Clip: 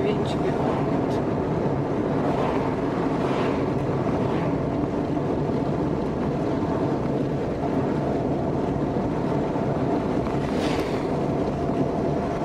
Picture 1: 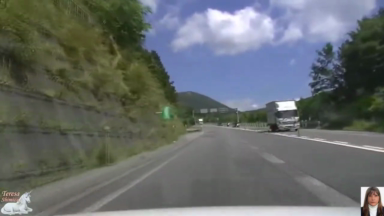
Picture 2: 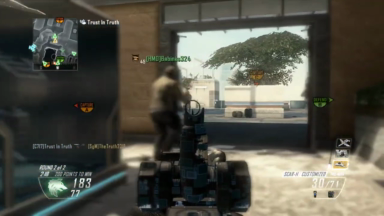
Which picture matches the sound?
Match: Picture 1